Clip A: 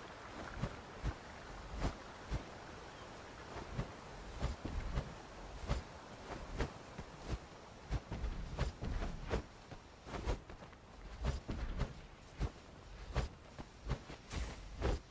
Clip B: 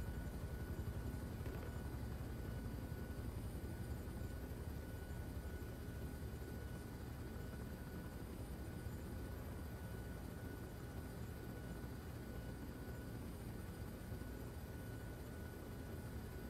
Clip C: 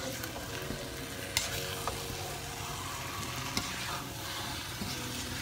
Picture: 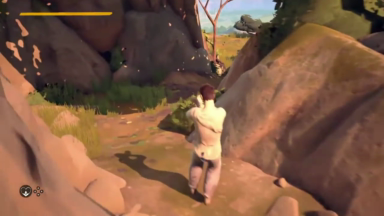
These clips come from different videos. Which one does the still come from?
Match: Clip A